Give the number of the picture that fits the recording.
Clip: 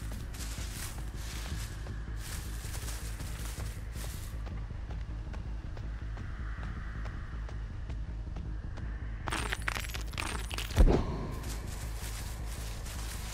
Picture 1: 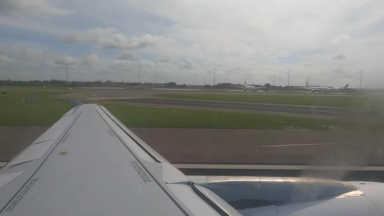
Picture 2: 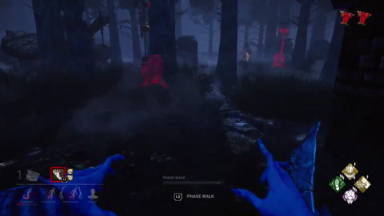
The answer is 2